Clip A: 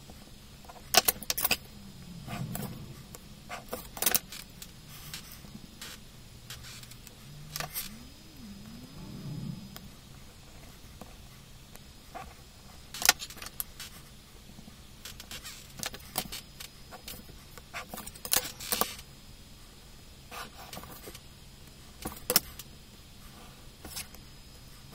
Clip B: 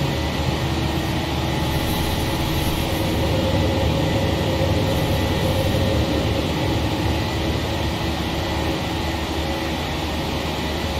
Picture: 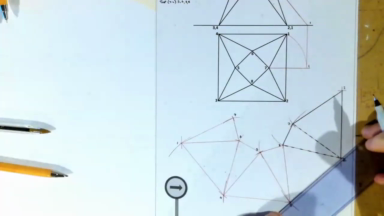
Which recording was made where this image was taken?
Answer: A